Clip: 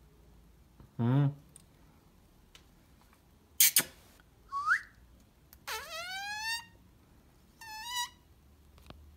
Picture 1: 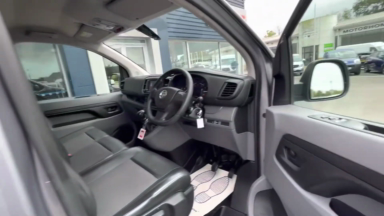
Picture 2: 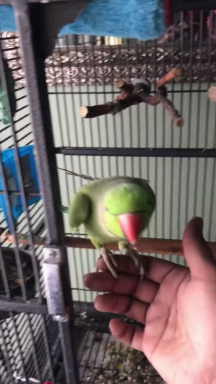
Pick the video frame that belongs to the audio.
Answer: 2